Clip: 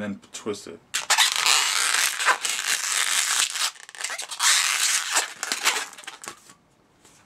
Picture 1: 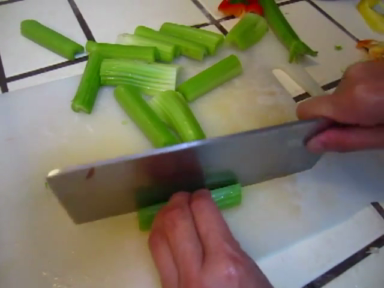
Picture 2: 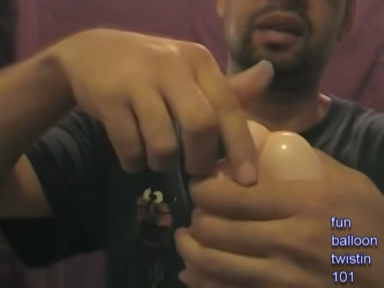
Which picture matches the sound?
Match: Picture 2